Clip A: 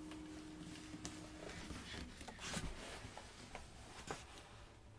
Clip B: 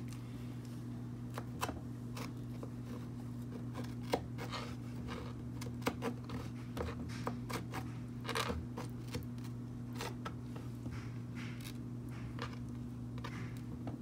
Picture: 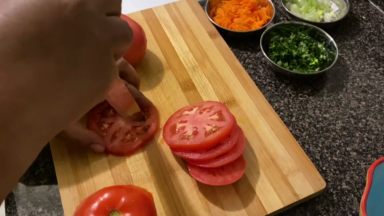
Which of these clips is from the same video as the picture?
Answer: B